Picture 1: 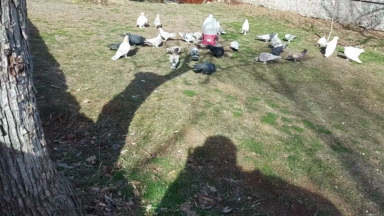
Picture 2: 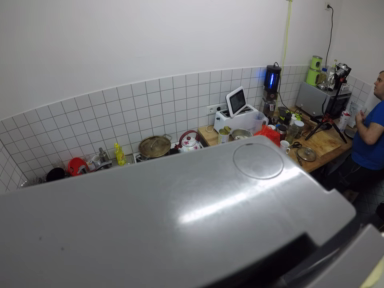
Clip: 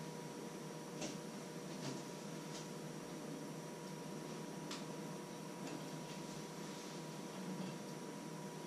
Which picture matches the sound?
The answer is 2